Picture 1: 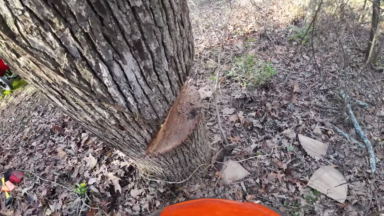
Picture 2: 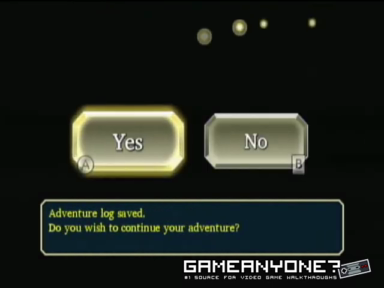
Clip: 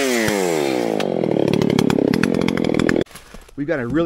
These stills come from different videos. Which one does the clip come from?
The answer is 1